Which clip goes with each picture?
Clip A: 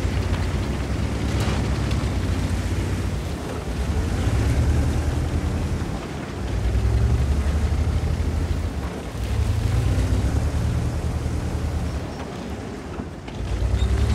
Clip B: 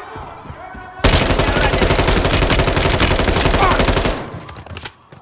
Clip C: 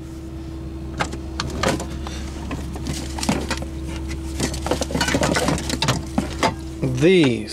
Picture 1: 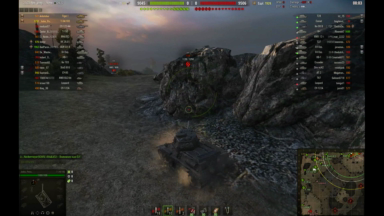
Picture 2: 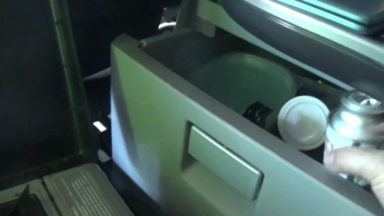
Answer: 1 A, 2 C